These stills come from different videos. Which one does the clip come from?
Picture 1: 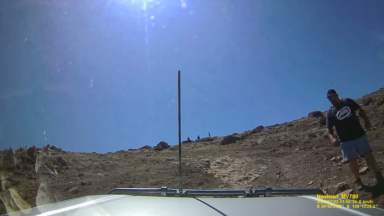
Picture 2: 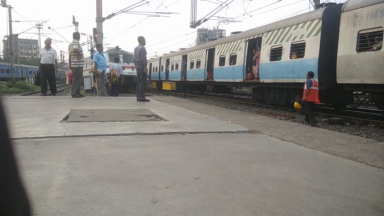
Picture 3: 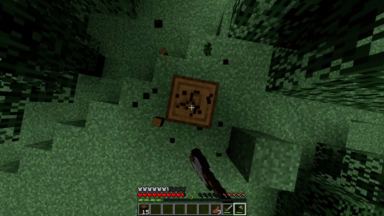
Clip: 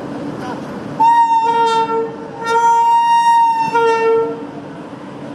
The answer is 2